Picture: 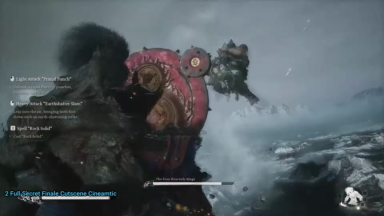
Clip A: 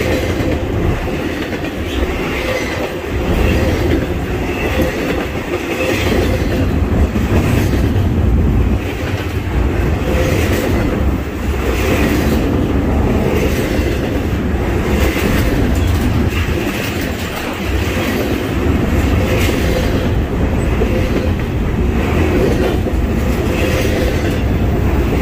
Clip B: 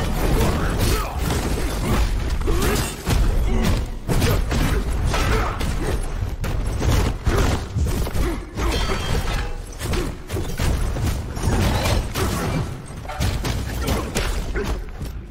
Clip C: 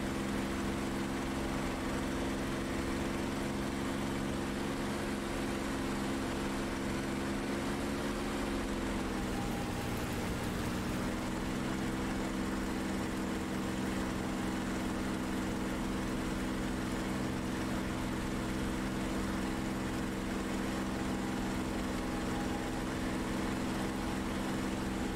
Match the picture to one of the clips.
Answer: B